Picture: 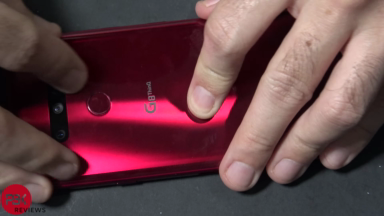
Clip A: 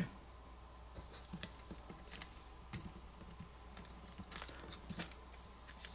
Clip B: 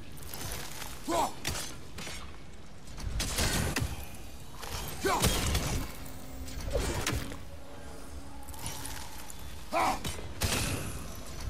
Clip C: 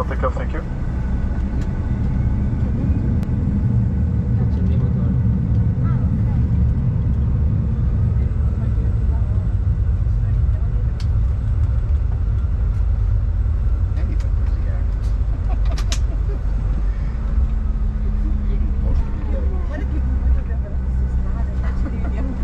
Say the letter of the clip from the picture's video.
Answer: A